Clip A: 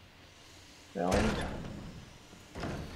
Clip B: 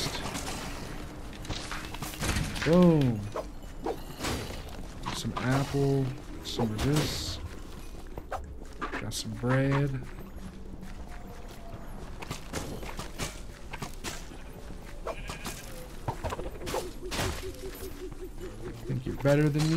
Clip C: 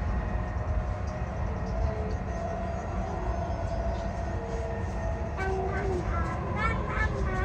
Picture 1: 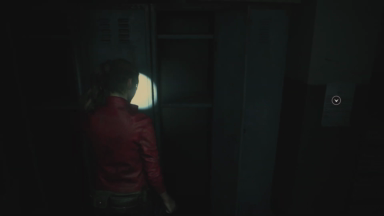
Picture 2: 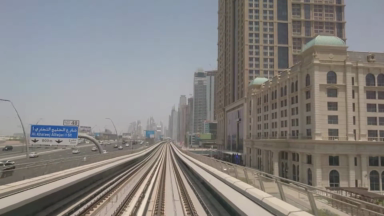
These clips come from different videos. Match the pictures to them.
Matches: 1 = A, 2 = C